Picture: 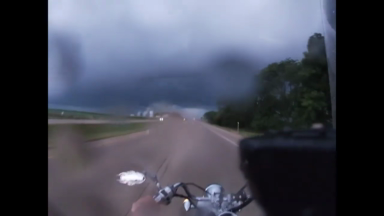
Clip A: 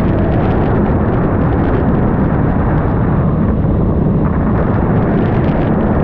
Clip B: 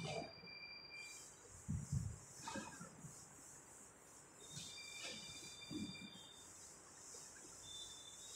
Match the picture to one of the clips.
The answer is A